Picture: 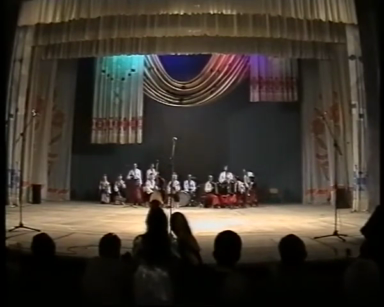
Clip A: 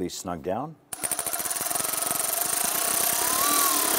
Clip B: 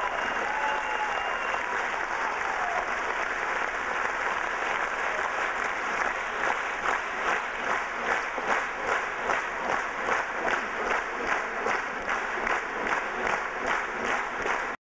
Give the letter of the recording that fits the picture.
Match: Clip B